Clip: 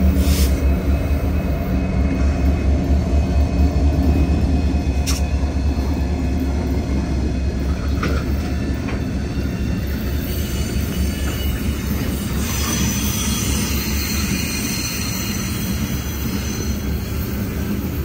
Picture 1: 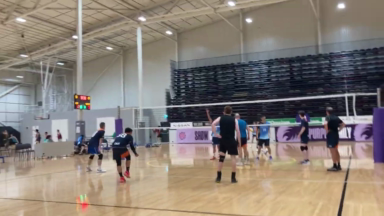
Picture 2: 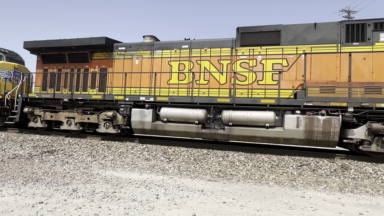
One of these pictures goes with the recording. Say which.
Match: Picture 2